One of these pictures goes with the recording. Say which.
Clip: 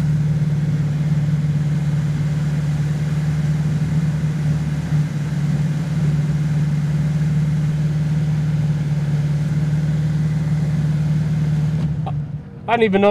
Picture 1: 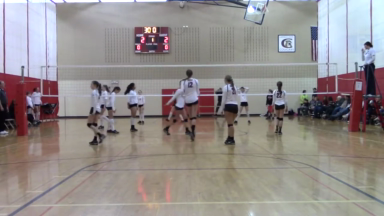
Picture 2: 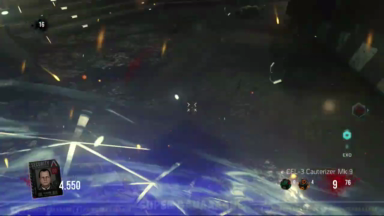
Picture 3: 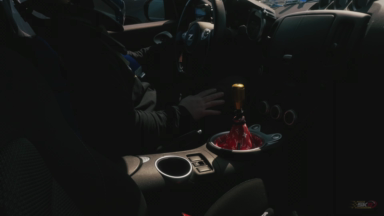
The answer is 3